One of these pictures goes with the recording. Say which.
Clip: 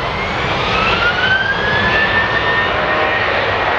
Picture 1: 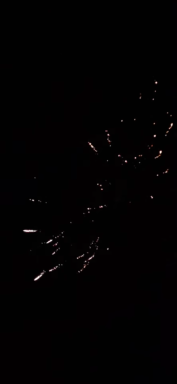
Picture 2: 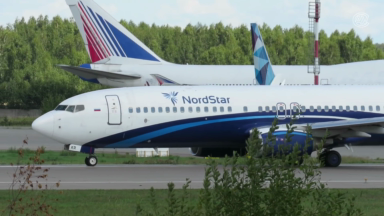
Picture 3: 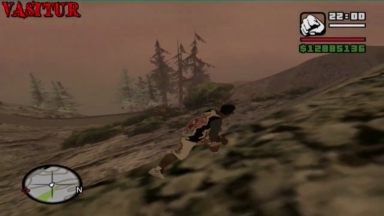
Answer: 2